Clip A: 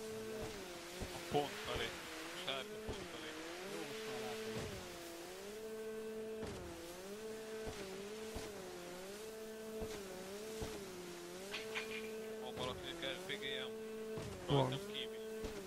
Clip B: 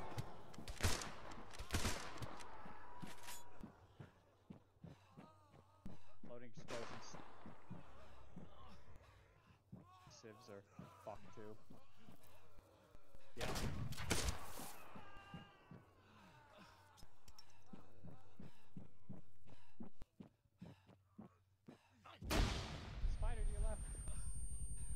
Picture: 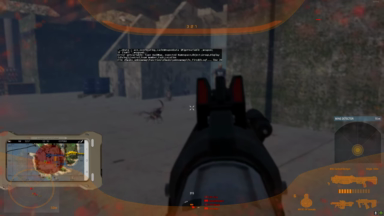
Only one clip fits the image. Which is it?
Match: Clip B